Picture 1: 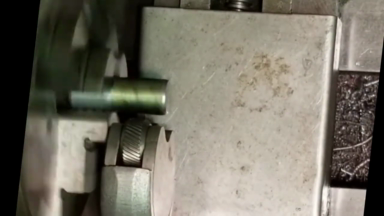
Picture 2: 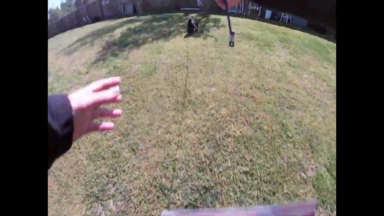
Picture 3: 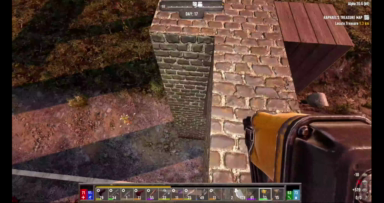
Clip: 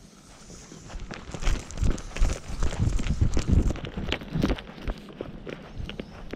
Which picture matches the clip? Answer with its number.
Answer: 2